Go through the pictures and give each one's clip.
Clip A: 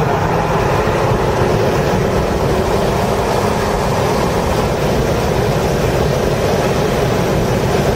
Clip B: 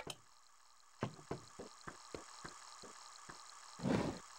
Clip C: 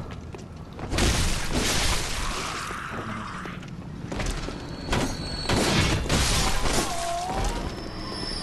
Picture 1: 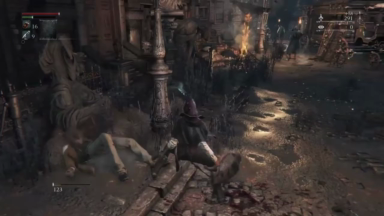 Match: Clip C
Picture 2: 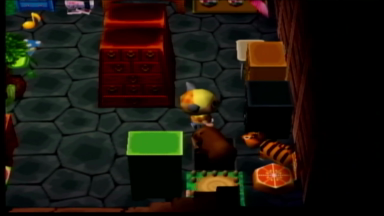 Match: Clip B